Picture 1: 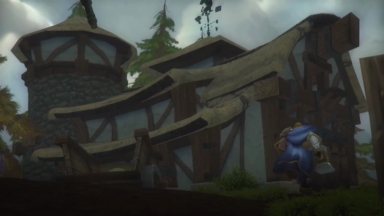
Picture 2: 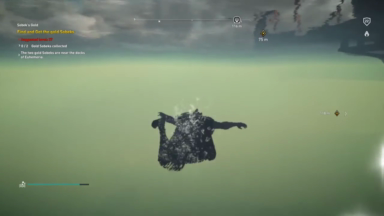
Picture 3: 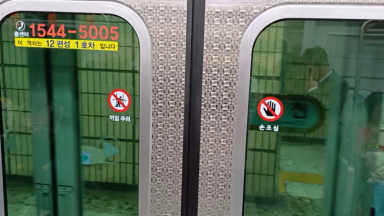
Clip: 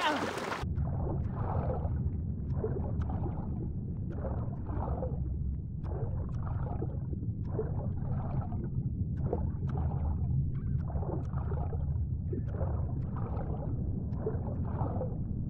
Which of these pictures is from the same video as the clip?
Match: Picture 2